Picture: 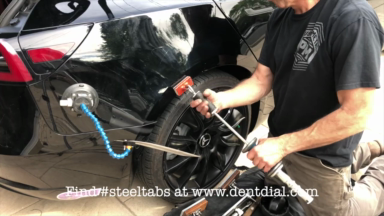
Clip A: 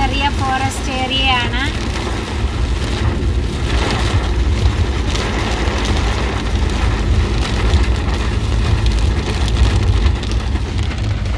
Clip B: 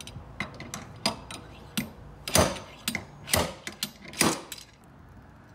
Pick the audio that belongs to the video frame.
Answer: B